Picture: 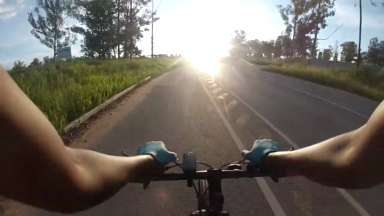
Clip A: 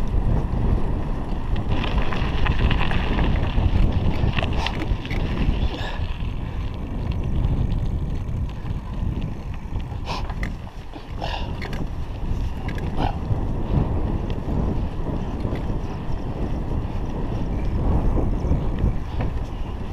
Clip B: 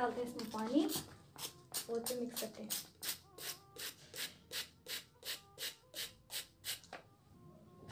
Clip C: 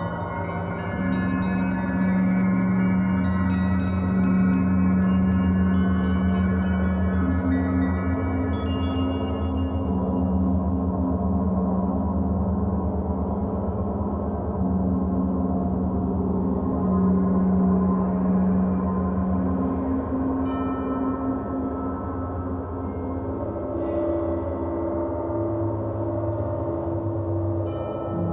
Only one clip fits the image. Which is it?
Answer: A